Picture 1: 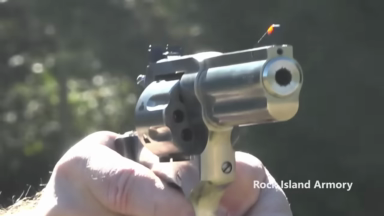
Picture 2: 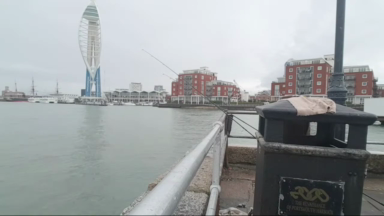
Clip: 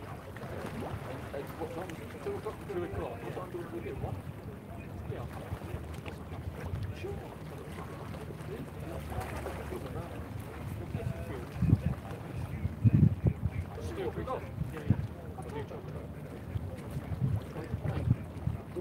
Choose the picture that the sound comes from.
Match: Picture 2